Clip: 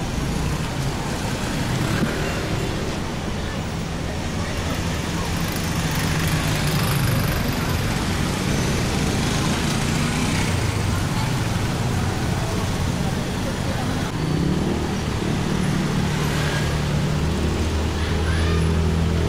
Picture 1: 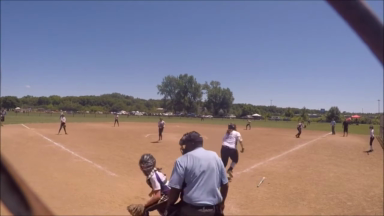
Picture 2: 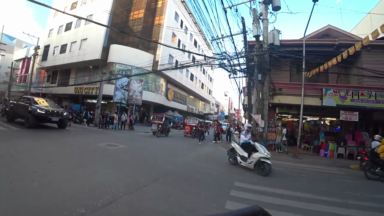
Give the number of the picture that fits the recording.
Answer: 2